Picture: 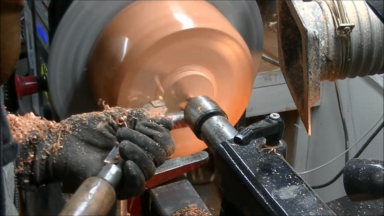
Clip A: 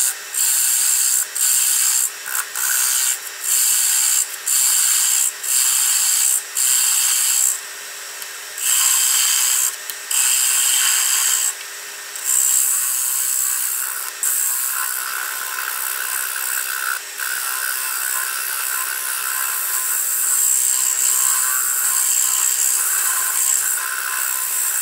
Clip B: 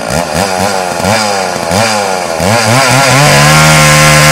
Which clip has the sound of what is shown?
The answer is A